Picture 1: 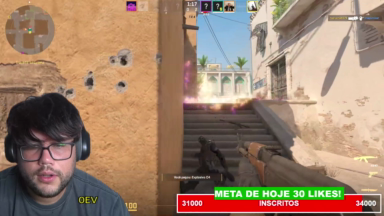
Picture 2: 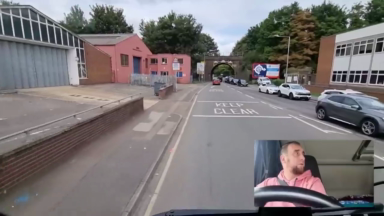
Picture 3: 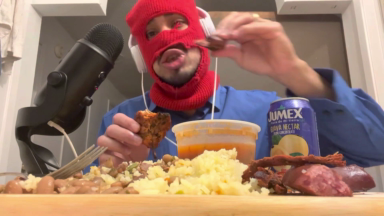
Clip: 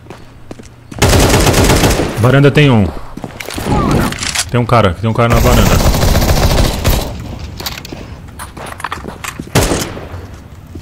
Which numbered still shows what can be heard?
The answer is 1